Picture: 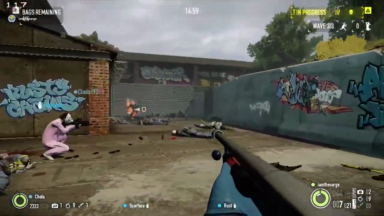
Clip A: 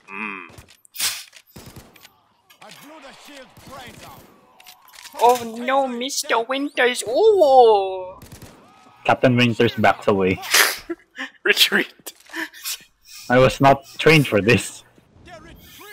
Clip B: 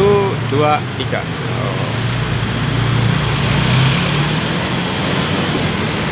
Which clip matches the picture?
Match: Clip A